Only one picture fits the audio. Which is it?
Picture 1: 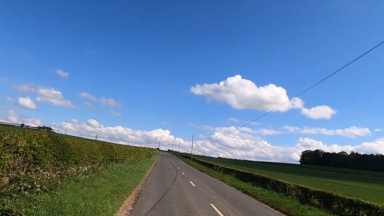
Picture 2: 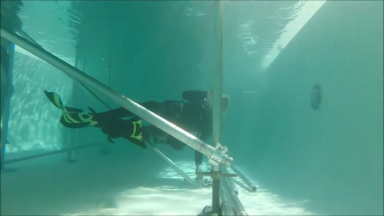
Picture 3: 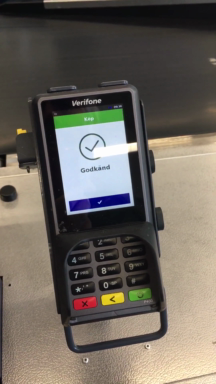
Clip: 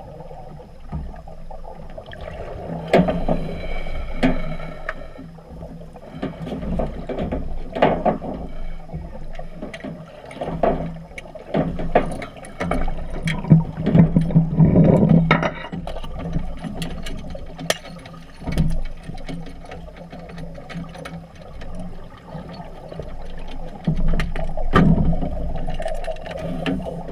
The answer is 2